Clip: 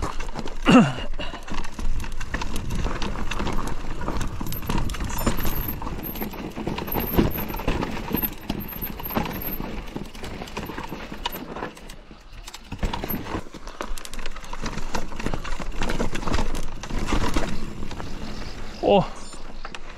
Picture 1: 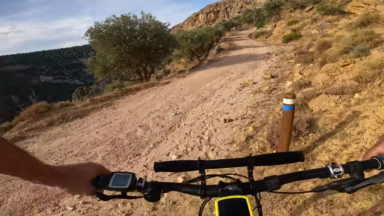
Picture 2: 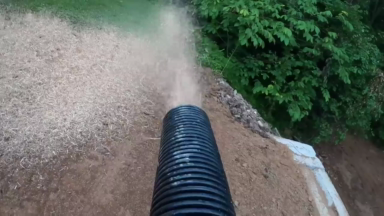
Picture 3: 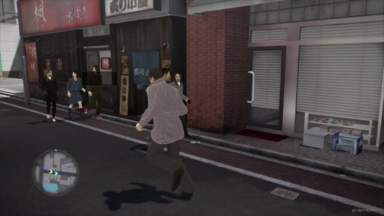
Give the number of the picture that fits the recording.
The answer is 1